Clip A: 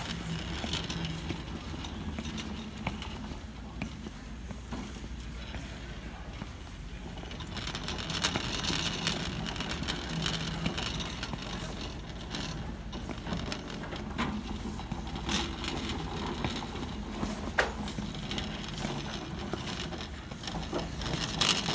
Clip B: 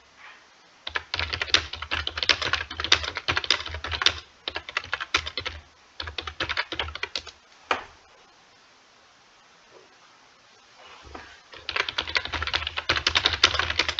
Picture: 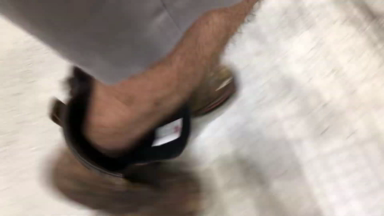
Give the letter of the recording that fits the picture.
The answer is A